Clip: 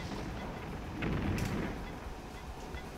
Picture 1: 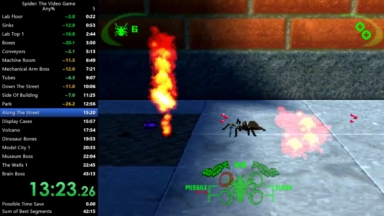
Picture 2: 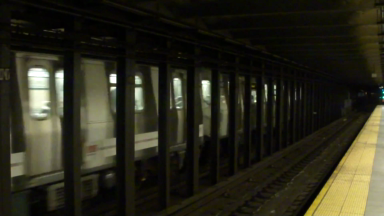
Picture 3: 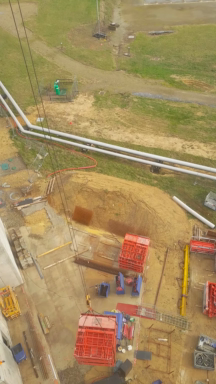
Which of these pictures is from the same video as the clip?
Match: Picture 1